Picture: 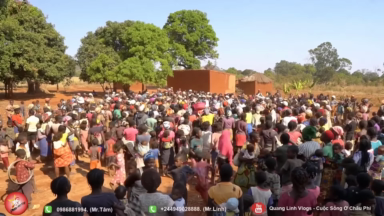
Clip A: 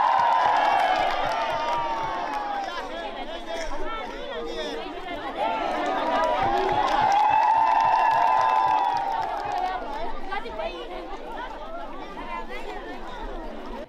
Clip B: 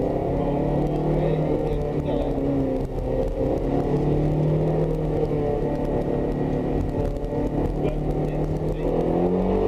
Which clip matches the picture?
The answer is A